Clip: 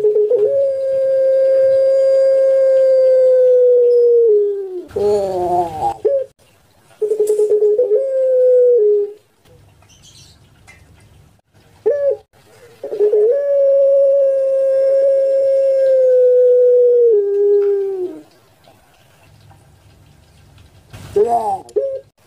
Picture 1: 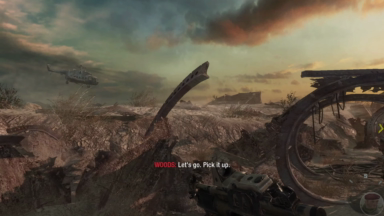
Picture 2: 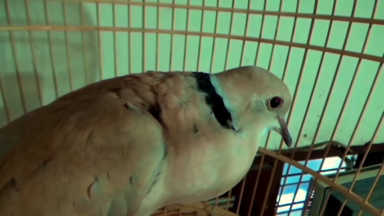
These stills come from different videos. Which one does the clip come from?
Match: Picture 2